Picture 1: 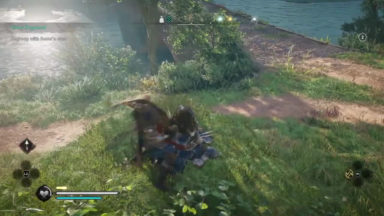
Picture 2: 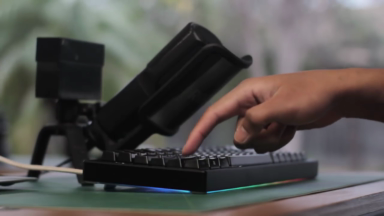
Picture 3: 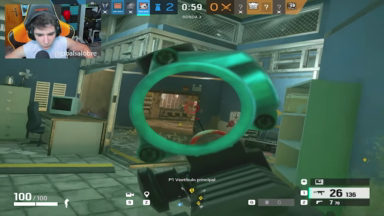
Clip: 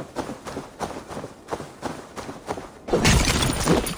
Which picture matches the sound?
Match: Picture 1